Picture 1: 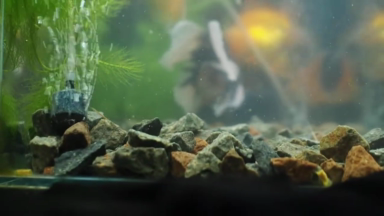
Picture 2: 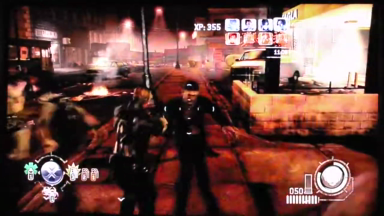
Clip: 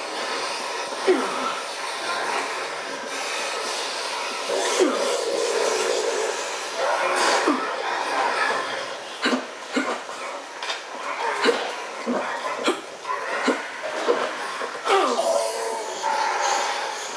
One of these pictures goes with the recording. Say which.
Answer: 2